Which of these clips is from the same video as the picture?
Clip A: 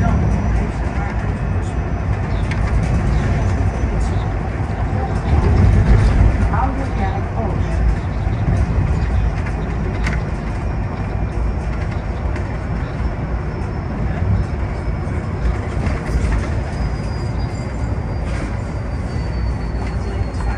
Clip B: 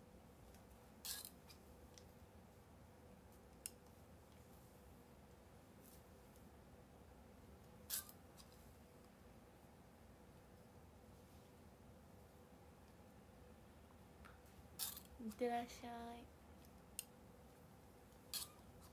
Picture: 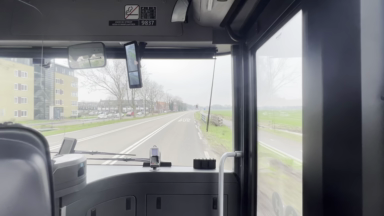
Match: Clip A